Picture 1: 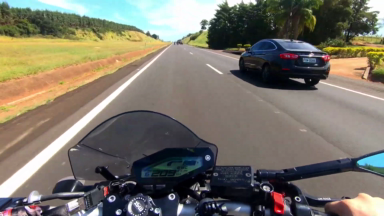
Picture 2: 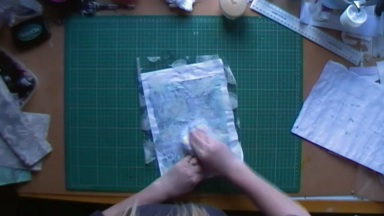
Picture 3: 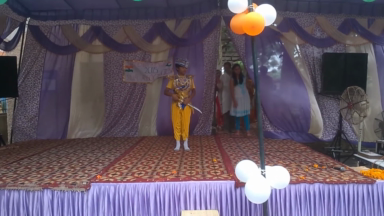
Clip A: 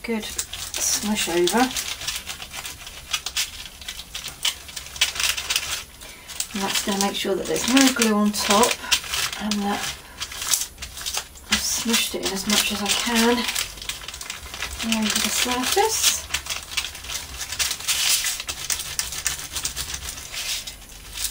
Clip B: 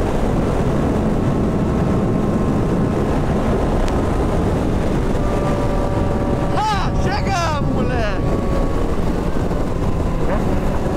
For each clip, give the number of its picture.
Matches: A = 2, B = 1